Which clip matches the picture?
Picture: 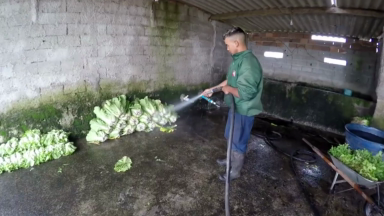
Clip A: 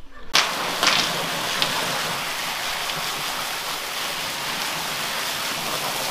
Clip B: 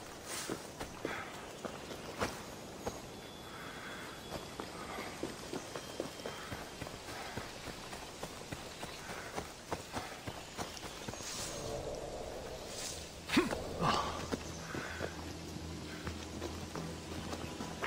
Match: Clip A